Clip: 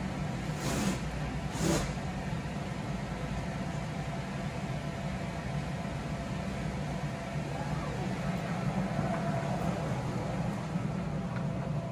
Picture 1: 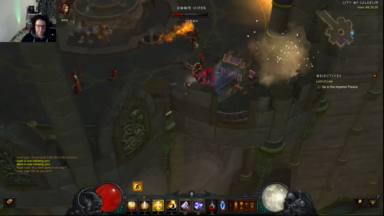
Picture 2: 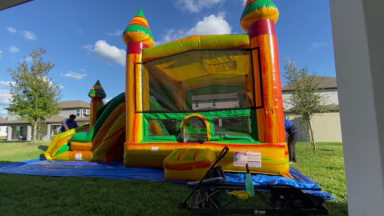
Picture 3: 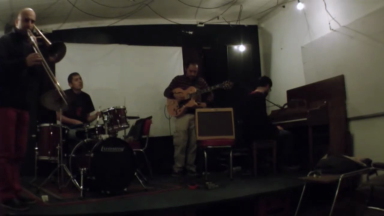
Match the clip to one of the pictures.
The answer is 2